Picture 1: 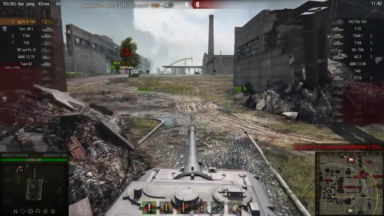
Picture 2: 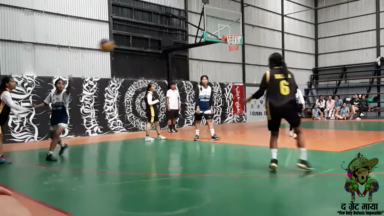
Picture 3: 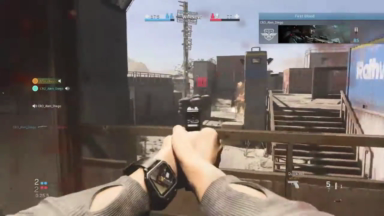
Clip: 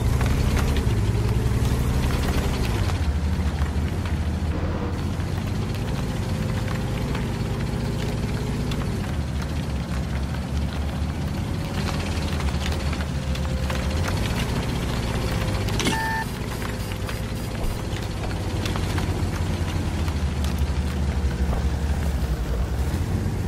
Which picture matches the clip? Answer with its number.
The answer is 1